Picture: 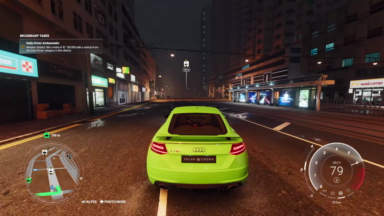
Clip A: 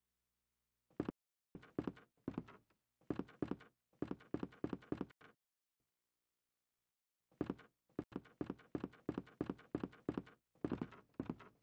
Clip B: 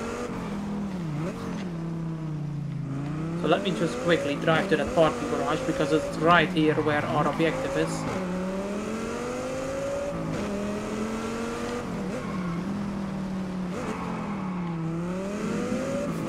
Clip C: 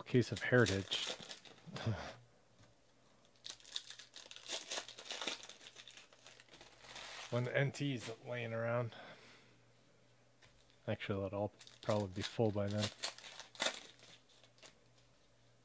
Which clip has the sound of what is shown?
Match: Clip B